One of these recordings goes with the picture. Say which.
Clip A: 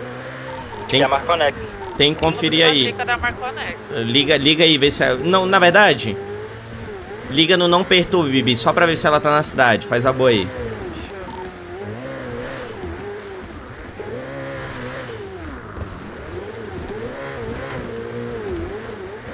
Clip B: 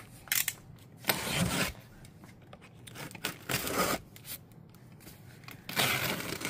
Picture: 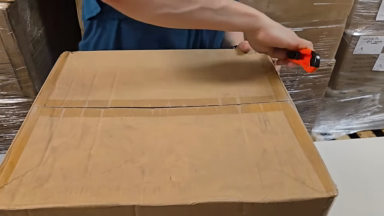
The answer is B